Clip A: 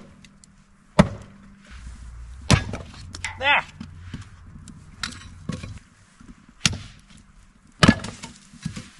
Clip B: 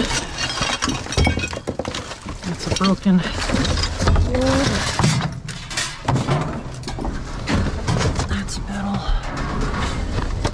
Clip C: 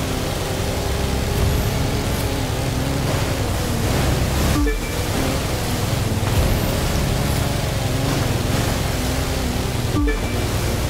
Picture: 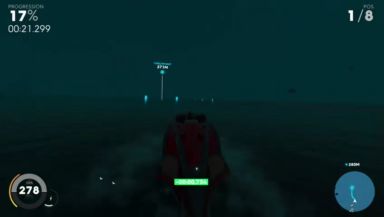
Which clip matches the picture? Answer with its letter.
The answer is C